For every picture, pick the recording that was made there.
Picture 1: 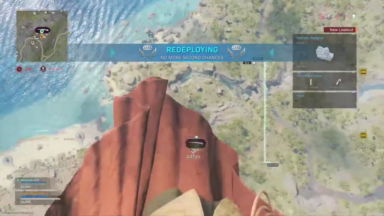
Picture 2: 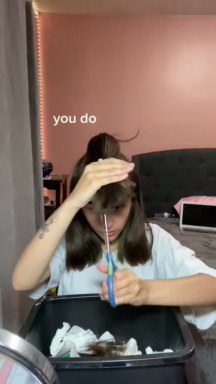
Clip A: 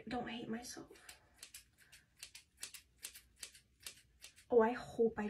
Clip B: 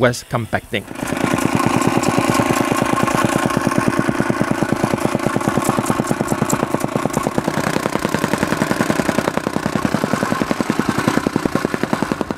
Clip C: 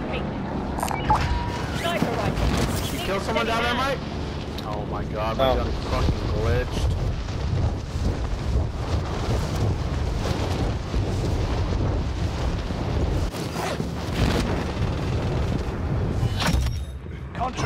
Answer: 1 C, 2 A